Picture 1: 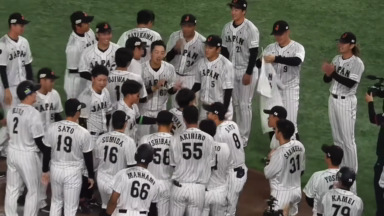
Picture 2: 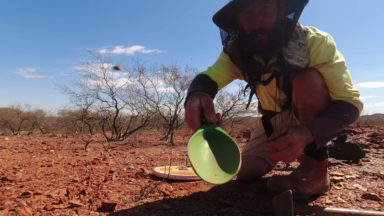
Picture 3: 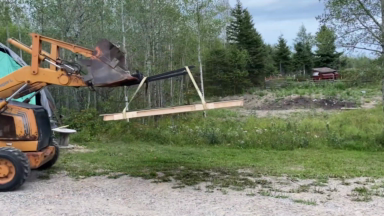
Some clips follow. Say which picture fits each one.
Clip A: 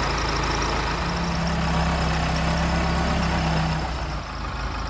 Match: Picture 3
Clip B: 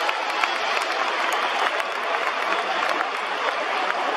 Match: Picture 1